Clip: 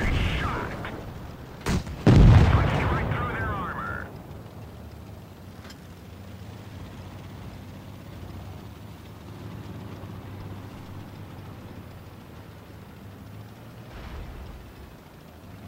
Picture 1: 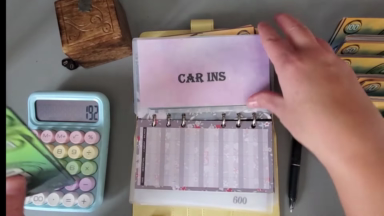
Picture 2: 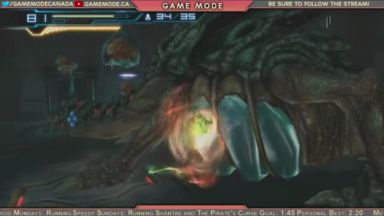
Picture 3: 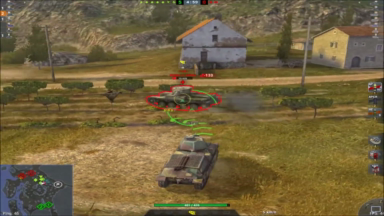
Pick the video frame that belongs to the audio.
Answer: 3